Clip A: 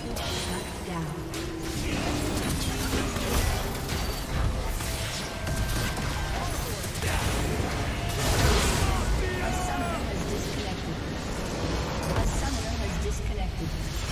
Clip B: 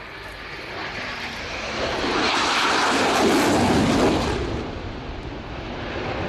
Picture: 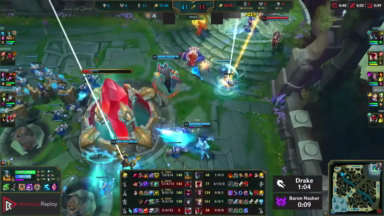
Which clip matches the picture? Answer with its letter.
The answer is A